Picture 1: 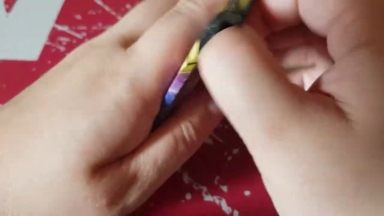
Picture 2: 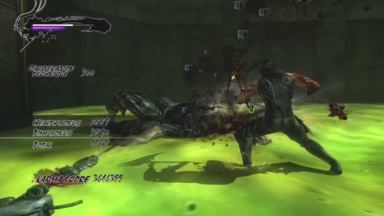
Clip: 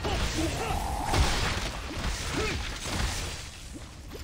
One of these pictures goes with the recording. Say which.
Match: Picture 2